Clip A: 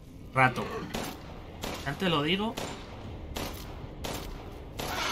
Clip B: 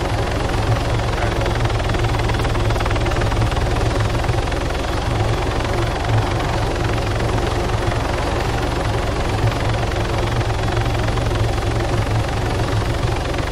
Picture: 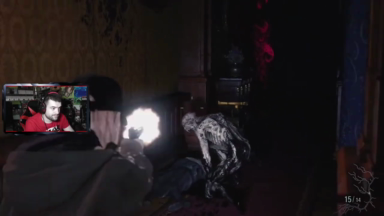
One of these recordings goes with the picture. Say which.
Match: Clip A